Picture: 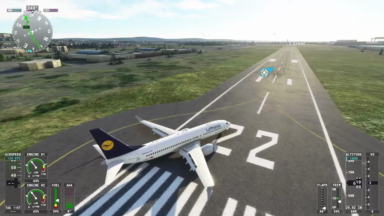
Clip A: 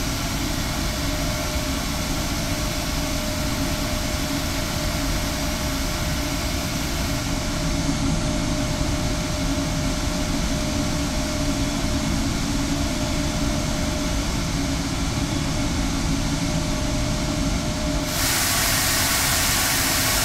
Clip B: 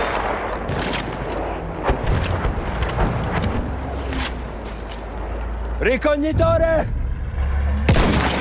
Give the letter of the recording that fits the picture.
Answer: A